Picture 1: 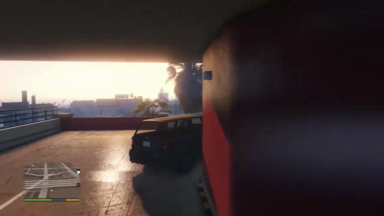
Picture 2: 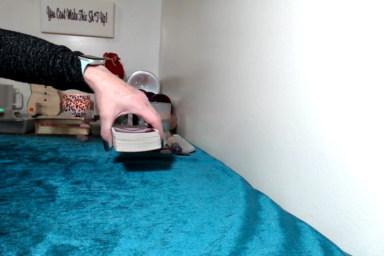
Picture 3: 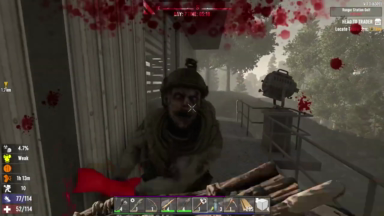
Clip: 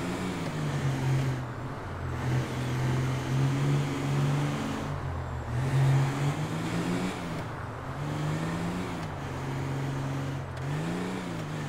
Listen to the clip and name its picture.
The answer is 1